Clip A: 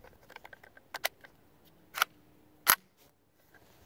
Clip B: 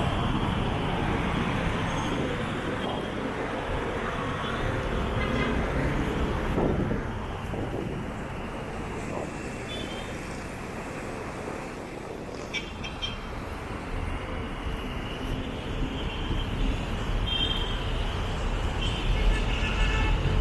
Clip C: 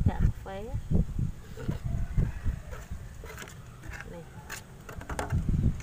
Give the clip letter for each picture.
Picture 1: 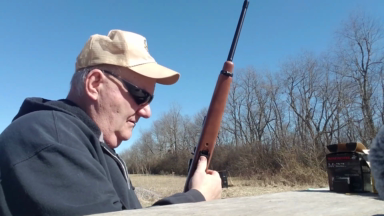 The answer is A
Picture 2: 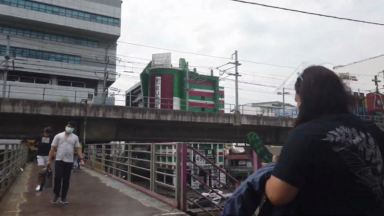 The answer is B